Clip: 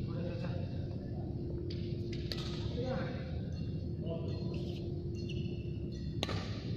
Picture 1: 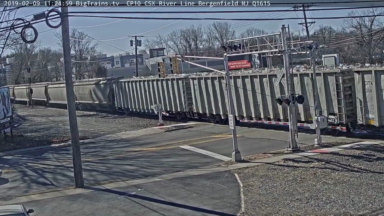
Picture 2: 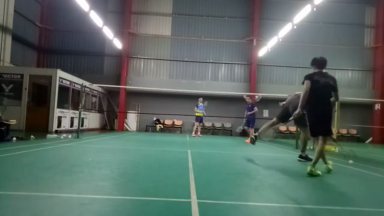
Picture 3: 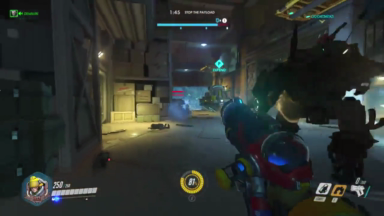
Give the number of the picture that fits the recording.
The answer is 2